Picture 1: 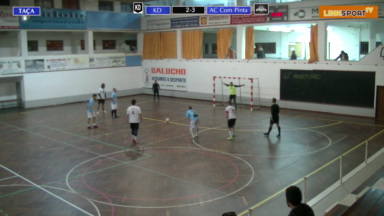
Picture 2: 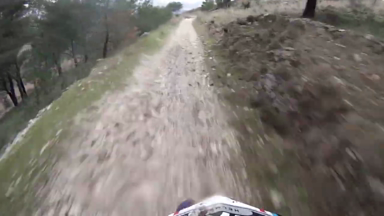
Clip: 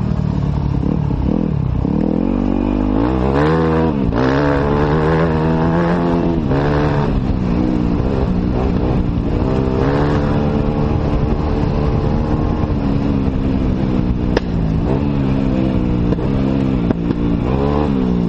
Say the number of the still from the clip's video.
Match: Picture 2